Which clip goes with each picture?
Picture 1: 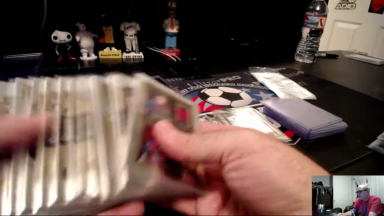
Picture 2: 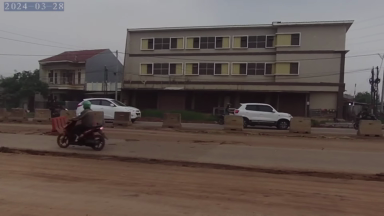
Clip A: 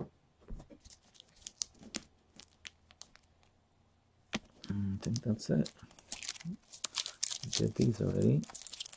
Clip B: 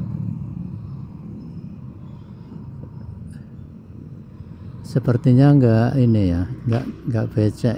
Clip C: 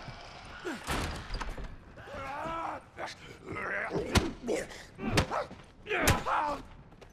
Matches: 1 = A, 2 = B